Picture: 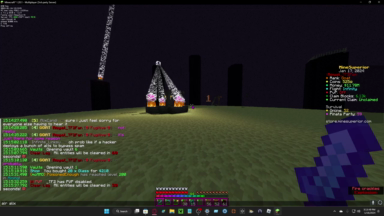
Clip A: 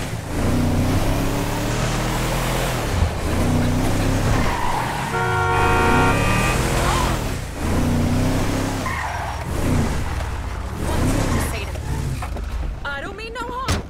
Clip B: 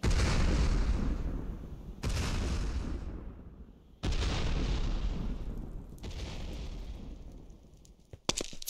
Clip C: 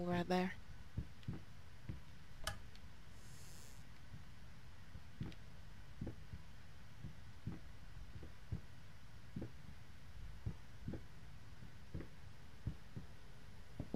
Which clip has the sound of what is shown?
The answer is B